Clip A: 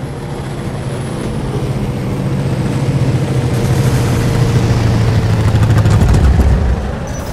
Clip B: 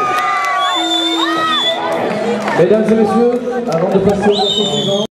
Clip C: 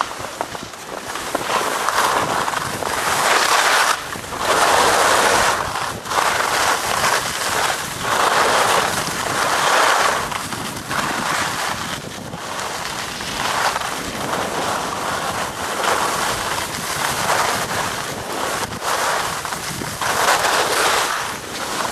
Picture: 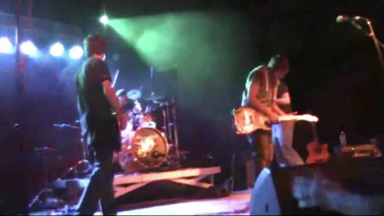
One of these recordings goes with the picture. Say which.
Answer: B